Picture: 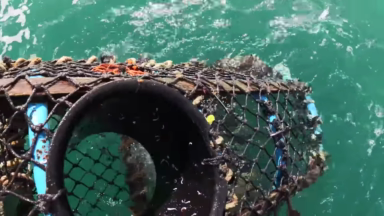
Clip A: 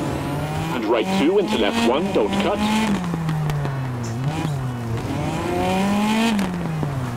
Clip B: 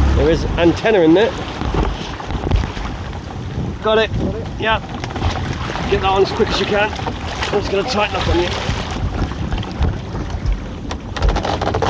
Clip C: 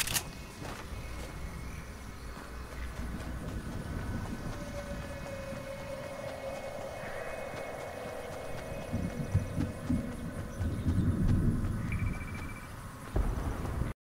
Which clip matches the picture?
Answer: B